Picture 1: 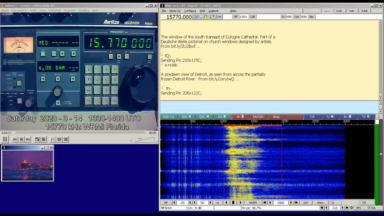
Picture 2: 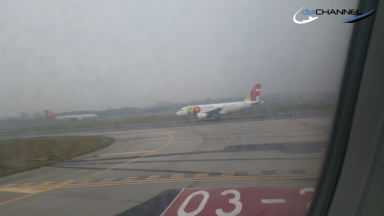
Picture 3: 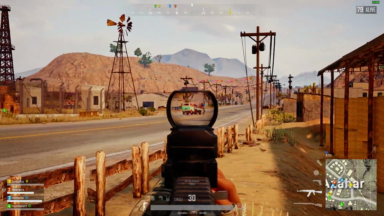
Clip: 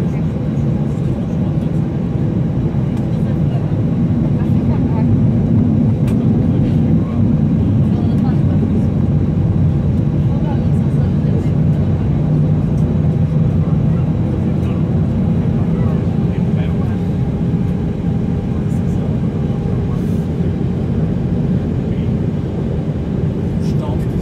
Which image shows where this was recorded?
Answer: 2